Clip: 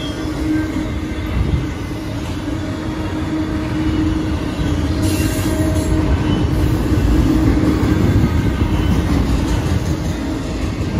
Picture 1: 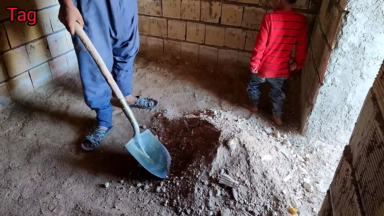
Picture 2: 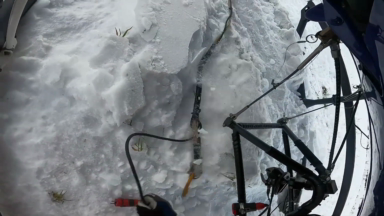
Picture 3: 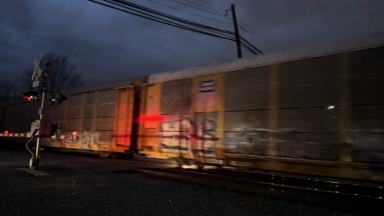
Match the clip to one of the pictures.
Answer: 3